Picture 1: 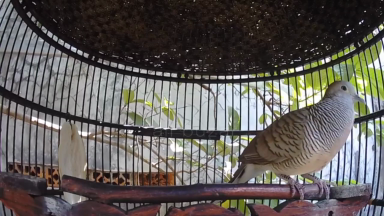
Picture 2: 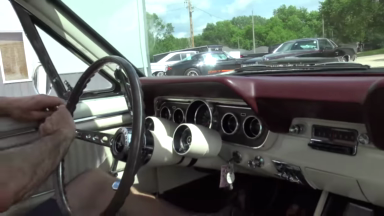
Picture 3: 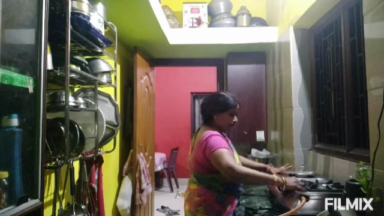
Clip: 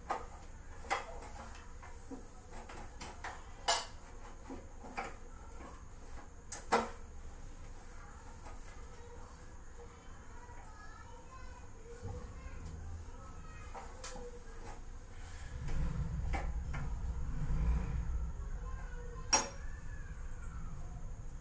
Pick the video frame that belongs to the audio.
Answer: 3